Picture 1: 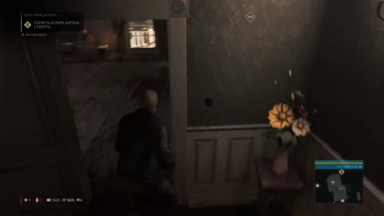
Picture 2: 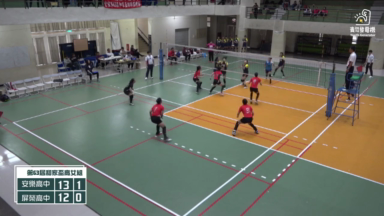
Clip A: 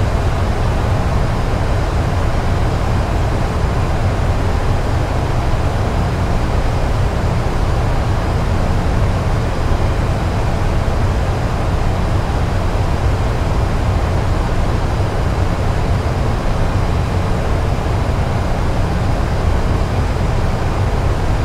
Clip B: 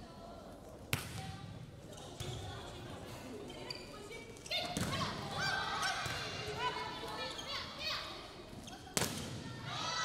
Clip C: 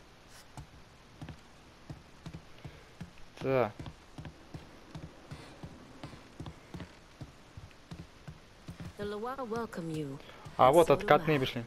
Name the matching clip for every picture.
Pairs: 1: C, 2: B